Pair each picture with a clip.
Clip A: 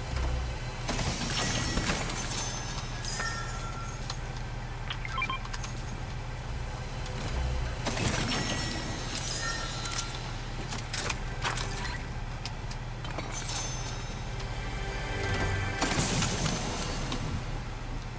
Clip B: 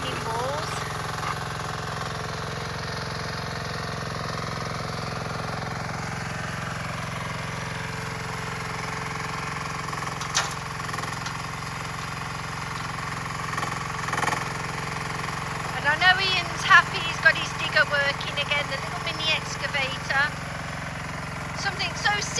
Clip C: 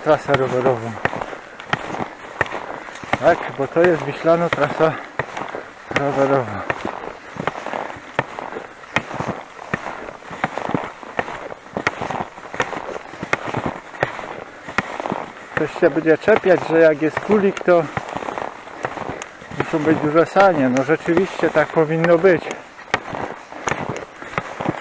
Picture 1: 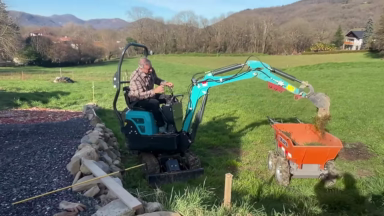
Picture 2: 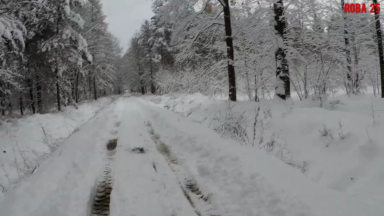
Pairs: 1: B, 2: C